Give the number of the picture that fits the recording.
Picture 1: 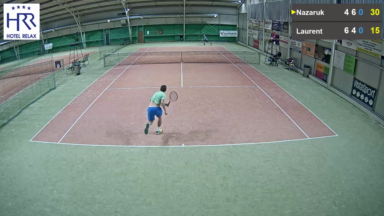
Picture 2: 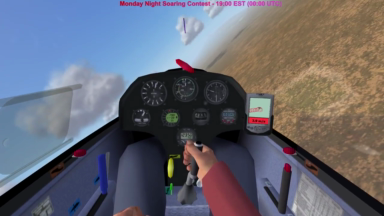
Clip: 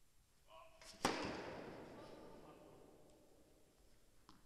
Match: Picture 1